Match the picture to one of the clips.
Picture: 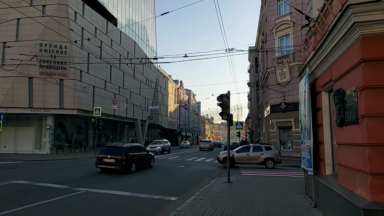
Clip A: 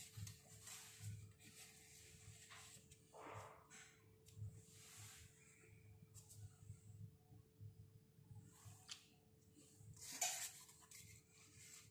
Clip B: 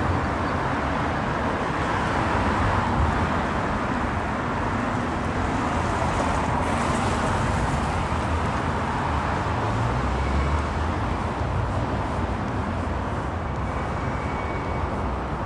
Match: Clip B